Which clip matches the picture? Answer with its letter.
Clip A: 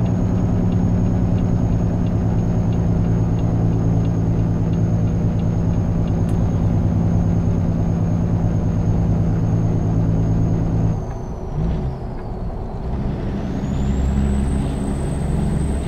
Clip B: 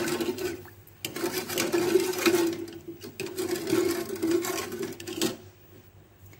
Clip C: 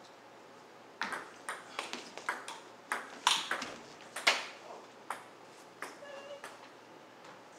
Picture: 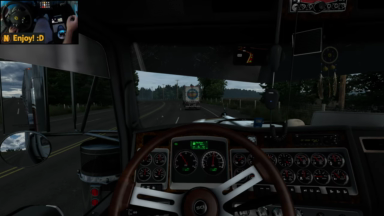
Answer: A